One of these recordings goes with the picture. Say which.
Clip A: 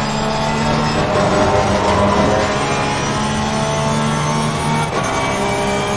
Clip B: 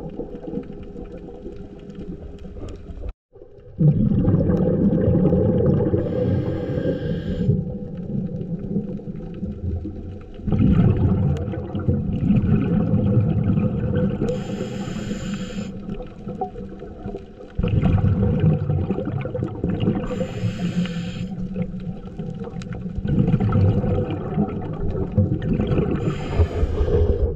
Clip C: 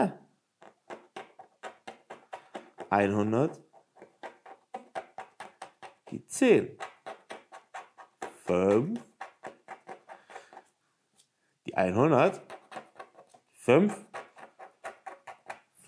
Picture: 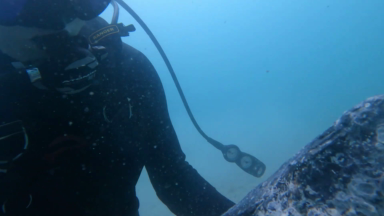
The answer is B